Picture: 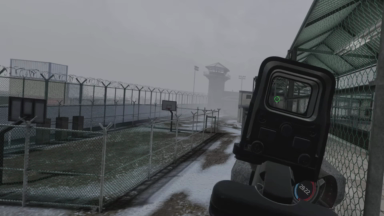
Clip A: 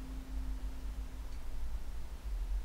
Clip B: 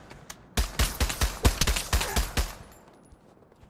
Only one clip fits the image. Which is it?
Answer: B